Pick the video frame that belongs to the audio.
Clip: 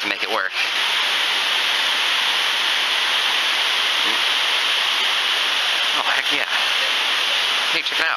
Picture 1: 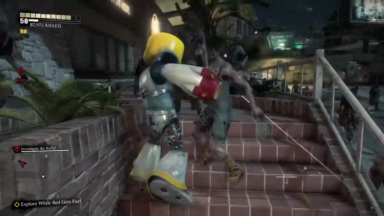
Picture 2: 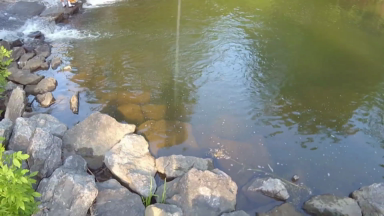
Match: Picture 2